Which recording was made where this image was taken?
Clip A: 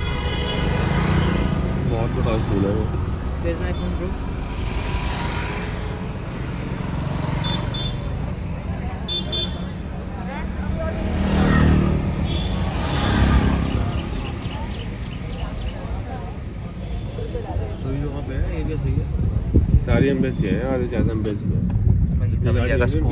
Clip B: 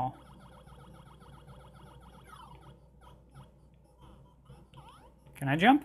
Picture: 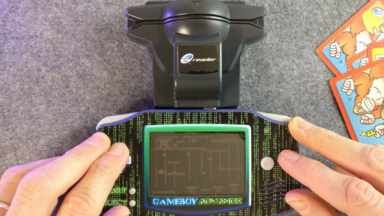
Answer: B